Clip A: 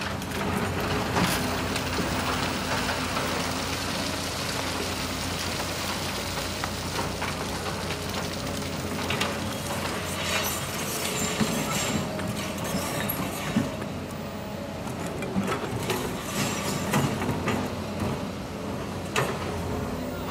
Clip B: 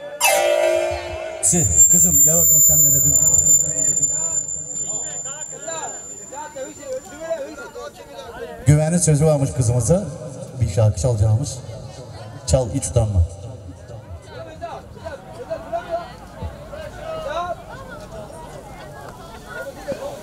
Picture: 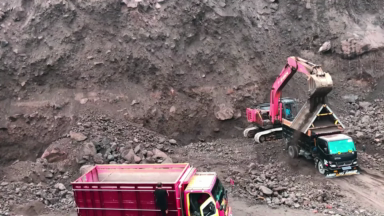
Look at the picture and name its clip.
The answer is A